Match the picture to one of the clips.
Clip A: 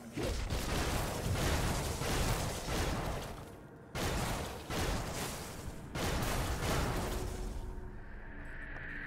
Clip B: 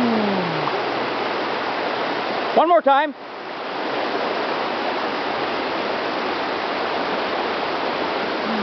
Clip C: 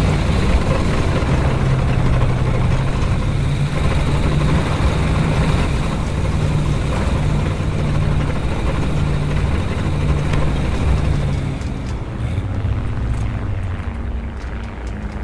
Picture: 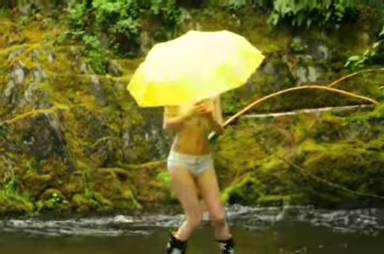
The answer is B